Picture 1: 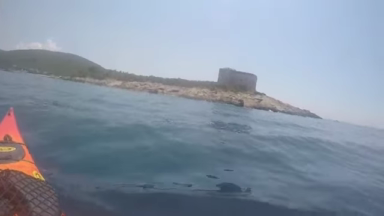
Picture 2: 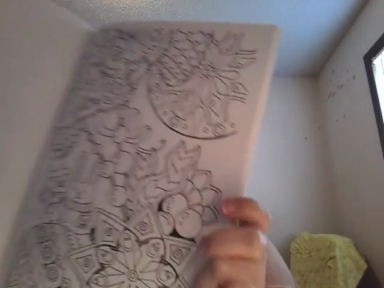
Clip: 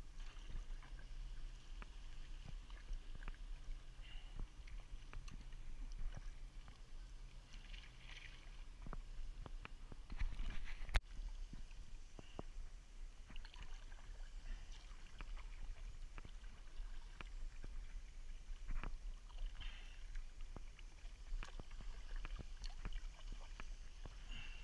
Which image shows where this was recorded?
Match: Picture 1